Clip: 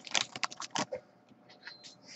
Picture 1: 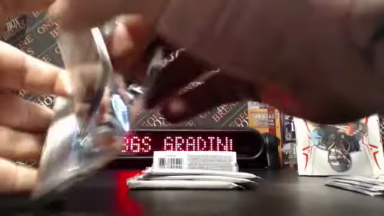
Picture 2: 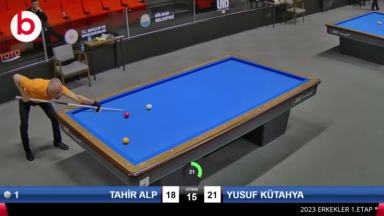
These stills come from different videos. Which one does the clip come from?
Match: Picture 1